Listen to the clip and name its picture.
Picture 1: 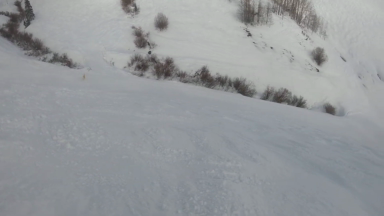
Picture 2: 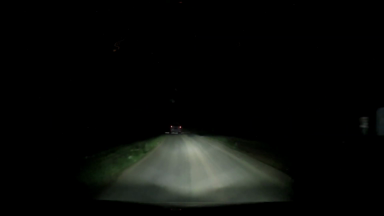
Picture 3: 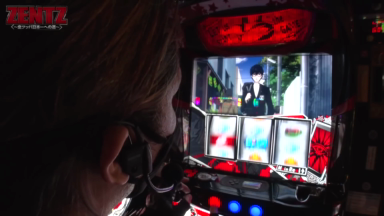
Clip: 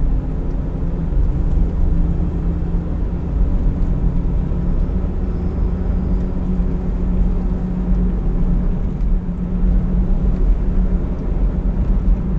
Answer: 2